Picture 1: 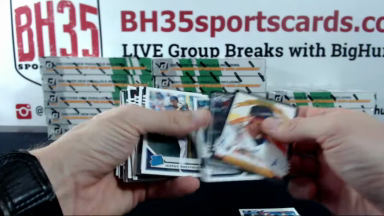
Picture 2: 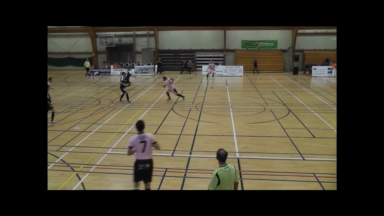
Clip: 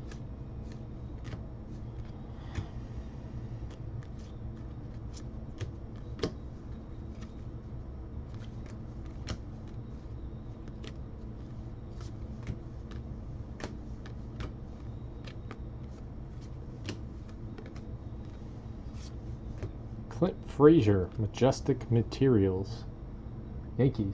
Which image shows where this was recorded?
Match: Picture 1